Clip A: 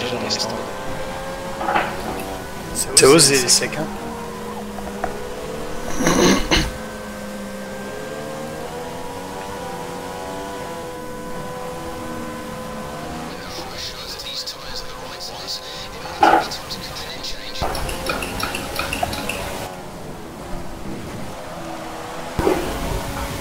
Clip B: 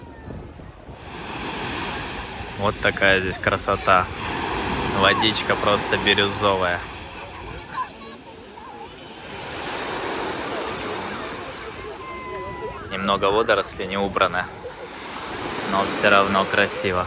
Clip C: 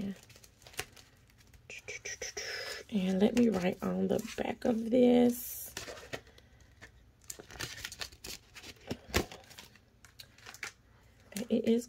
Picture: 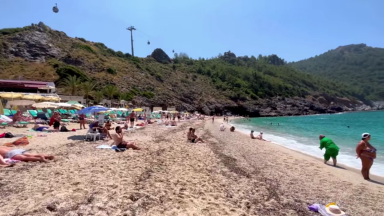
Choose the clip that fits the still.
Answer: B